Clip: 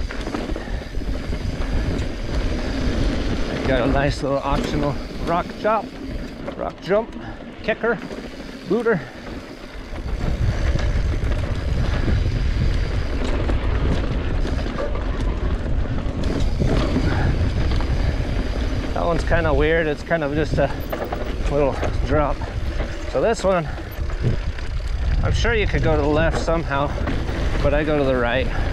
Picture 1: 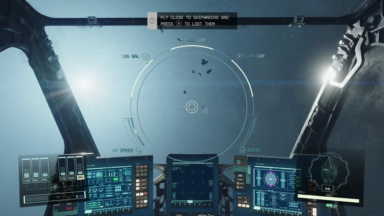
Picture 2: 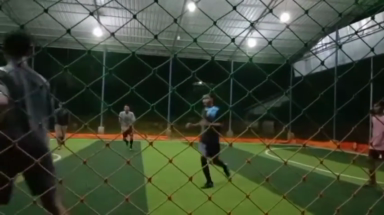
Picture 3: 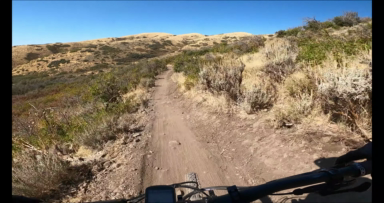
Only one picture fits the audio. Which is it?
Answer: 3